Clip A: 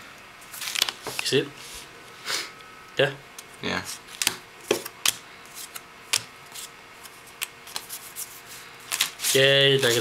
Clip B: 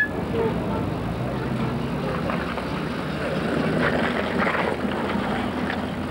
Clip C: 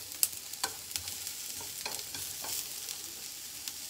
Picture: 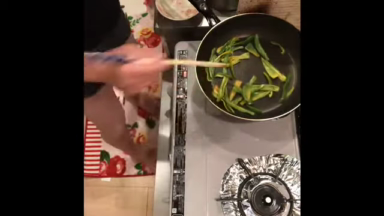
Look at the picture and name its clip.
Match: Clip C